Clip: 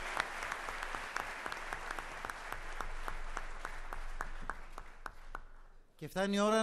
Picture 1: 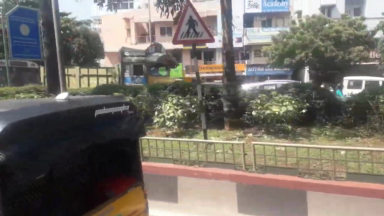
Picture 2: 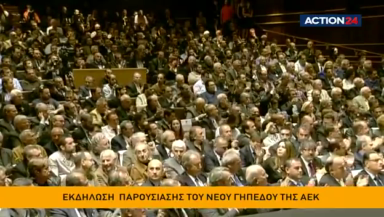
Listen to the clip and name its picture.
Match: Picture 2